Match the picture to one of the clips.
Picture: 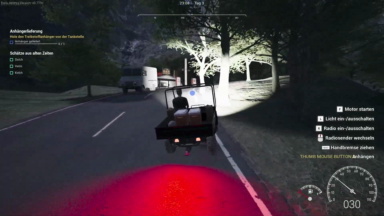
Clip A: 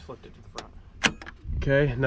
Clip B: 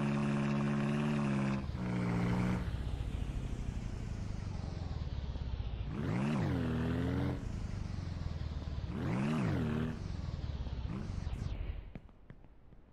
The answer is B